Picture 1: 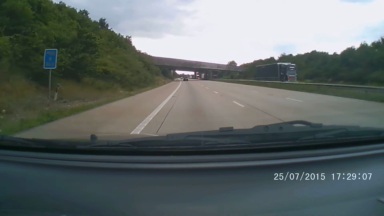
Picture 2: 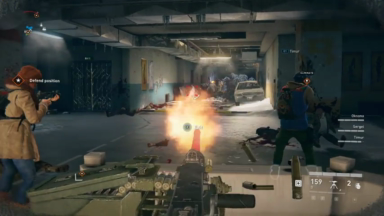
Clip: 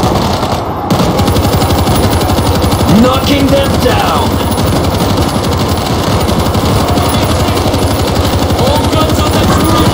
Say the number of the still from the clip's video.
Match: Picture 2